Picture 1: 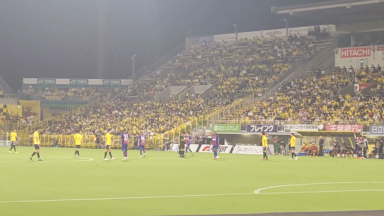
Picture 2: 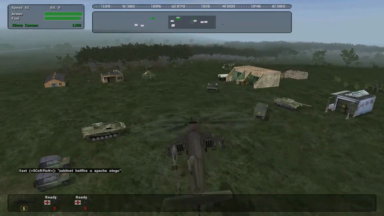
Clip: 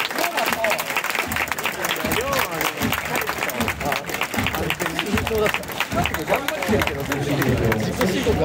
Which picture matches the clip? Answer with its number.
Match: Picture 1